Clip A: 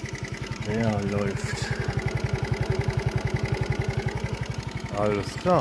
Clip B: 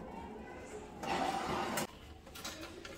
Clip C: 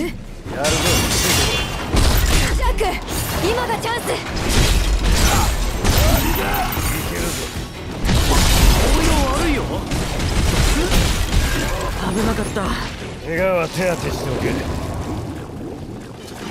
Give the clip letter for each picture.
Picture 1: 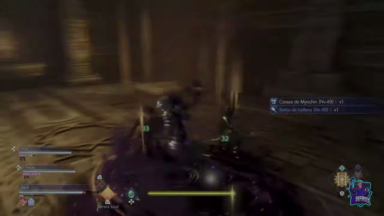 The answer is C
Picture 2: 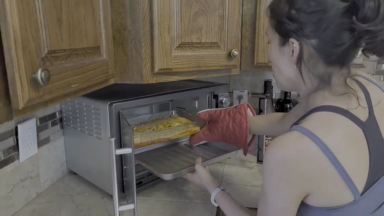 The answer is B